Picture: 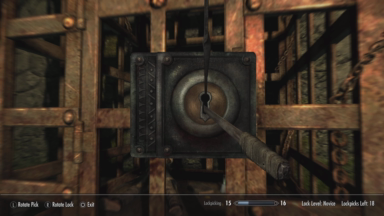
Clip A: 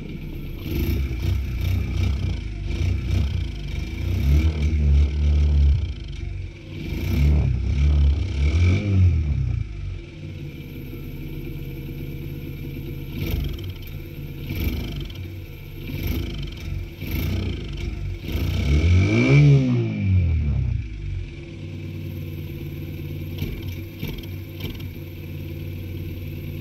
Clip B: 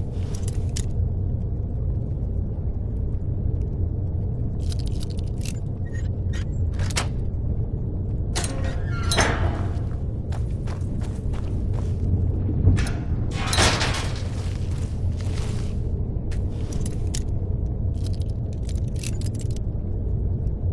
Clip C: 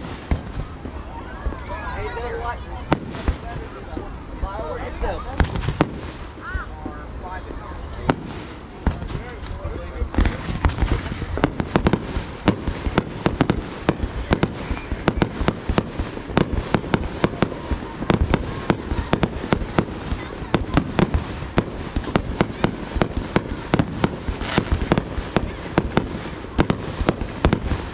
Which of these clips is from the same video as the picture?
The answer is B